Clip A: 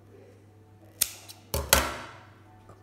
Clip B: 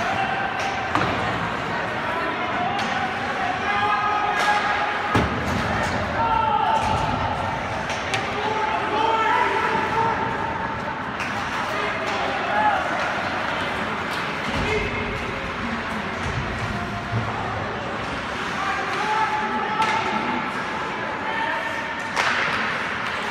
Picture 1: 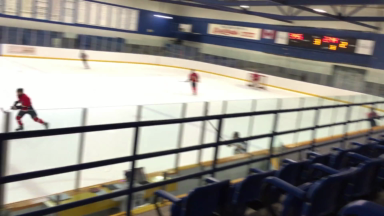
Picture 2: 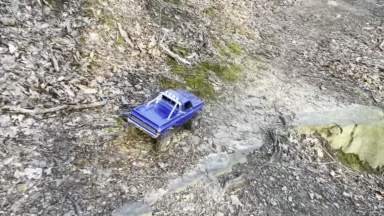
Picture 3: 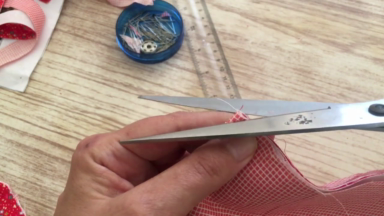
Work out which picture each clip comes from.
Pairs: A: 3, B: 1